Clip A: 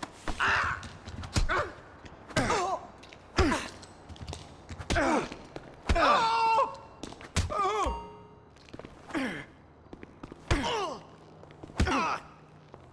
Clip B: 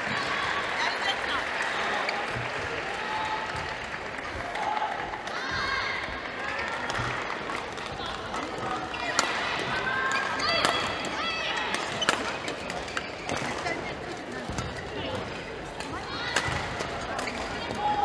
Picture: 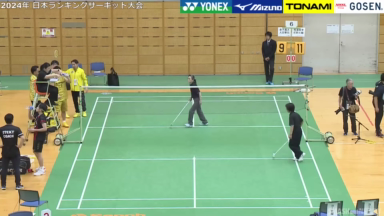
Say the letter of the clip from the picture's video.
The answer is B